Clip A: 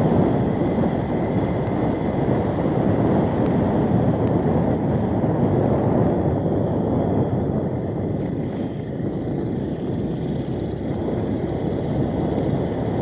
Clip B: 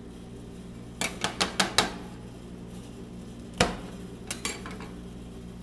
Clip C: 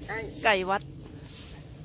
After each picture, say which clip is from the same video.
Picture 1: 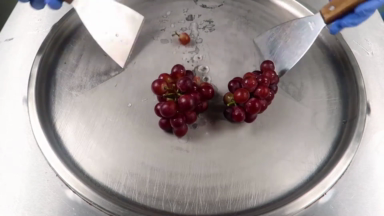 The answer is B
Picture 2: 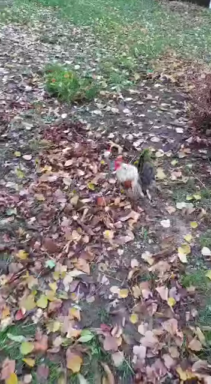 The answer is C